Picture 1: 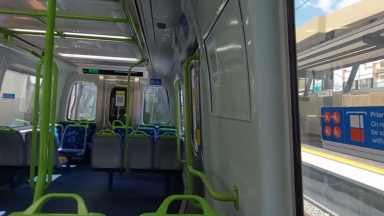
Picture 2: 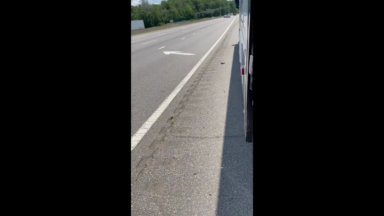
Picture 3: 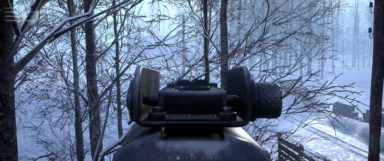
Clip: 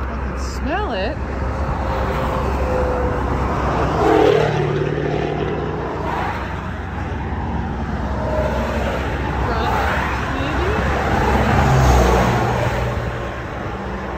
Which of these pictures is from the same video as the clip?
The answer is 2